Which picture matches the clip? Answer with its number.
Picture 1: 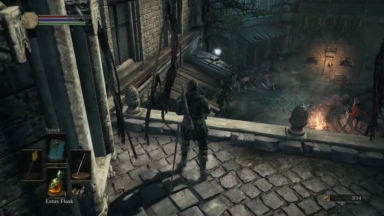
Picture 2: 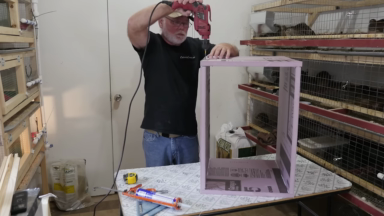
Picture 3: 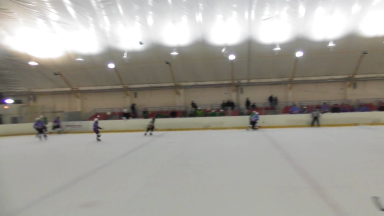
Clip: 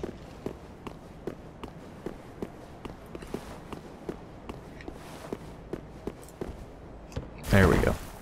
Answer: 1